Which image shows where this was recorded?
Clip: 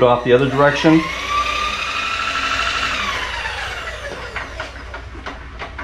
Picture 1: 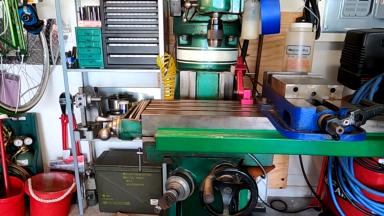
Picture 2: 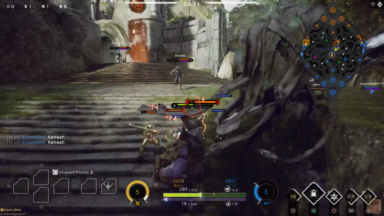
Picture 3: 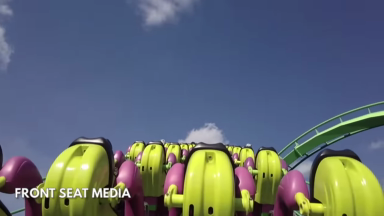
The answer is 1